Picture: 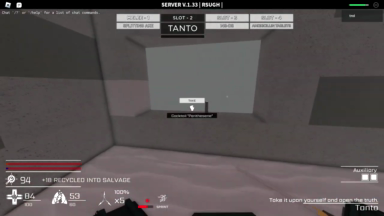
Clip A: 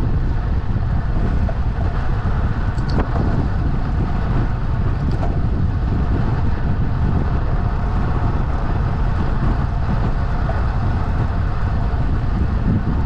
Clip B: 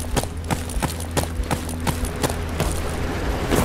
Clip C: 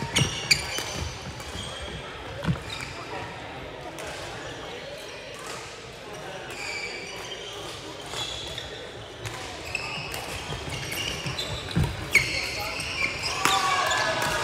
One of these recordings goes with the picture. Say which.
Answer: B